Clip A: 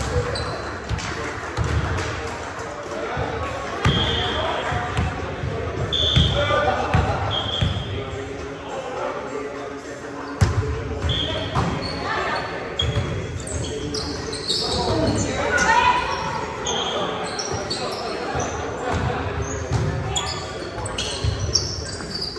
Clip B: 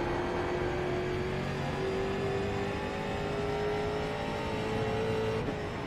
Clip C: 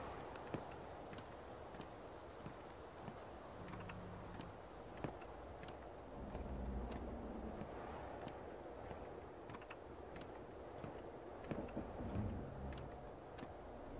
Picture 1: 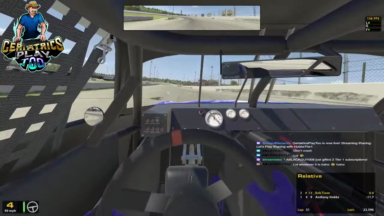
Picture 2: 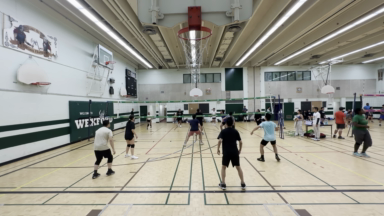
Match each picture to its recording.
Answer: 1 B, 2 A